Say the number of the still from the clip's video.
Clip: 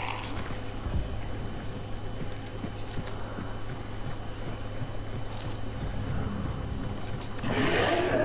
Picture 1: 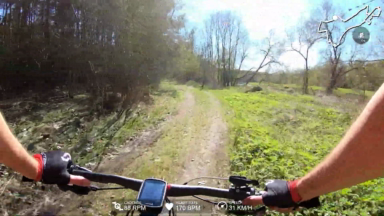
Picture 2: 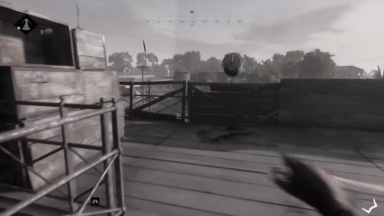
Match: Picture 2